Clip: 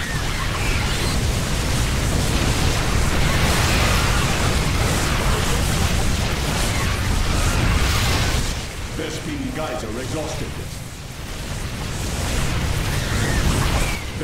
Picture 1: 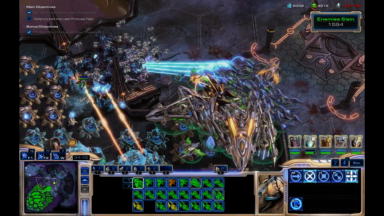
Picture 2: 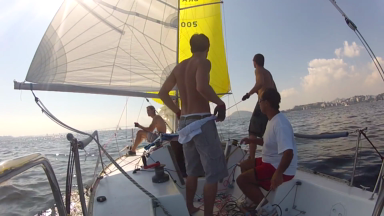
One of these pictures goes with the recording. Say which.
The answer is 1